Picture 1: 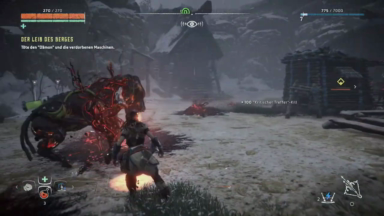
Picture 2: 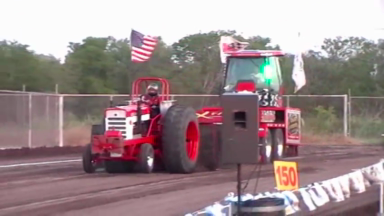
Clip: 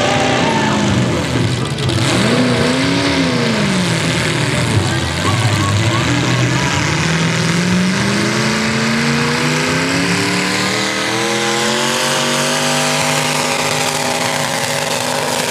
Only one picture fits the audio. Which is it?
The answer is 2